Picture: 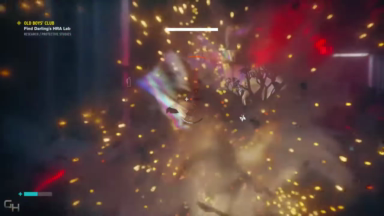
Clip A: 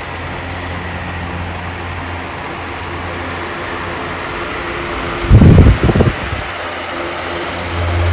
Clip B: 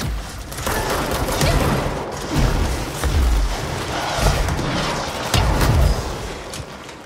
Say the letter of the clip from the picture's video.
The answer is B